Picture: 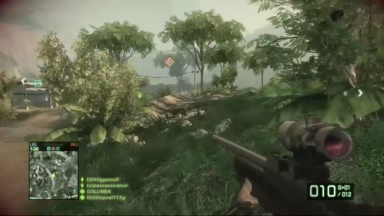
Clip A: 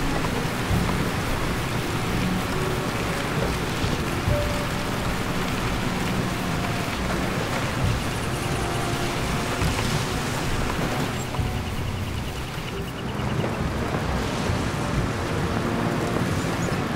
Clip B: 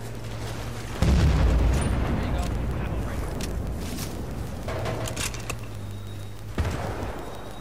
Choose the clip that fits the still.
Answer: B